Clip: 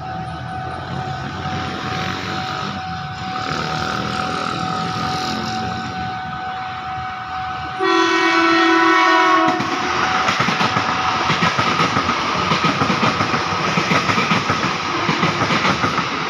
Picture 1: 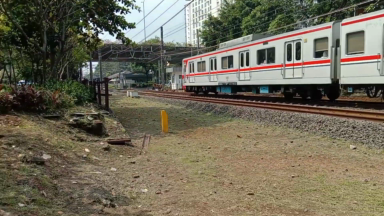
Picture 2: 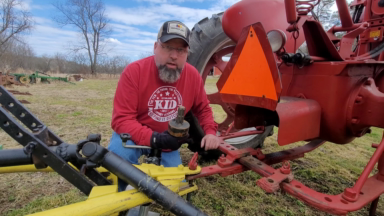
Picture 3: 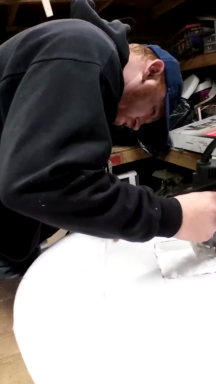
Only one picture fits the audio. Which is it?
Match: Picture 1